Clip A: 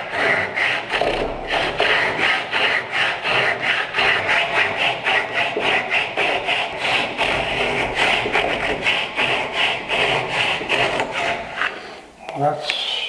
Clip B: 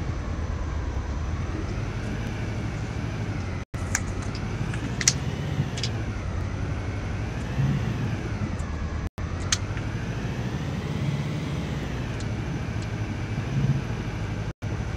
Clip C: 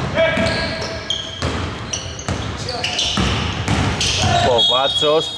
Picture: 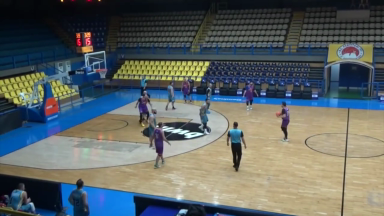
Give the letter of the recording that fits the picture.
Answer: C